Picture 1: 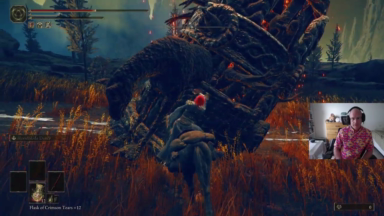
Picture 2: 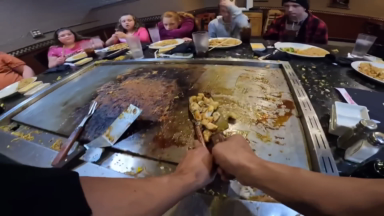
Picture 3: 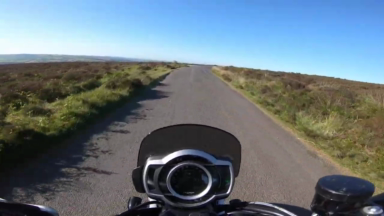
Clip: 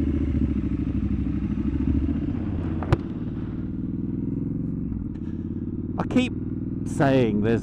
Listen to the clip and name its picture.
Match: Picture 3